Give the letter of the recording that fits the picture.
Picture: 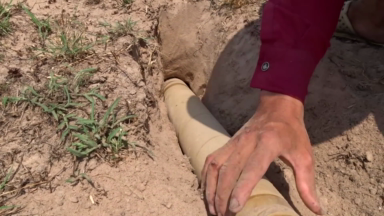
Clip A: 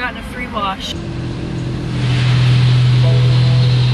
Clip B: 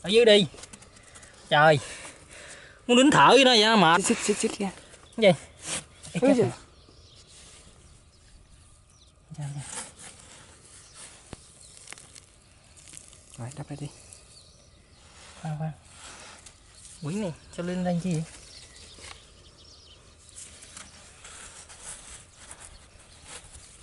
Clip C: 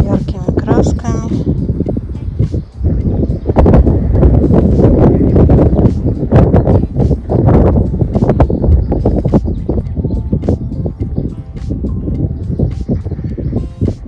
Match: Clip B